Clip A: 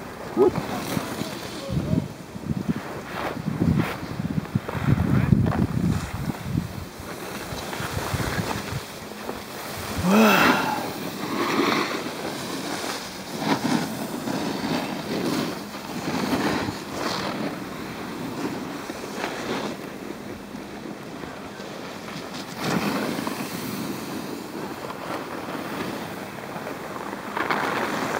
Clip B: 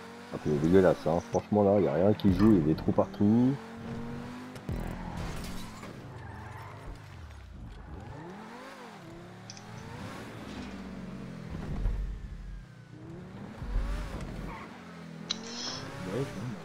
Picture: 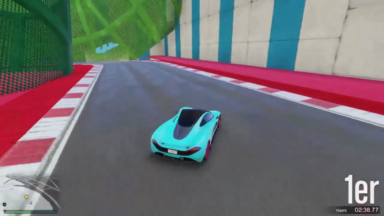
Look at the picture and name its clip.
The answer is B